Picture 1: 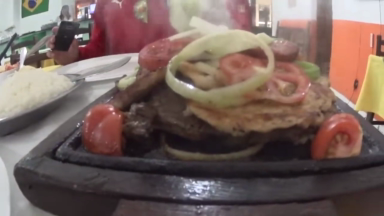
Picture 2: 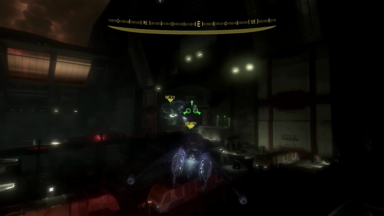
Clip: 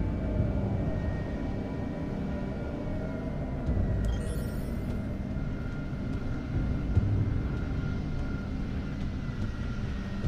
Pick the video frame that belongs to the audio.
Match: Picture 2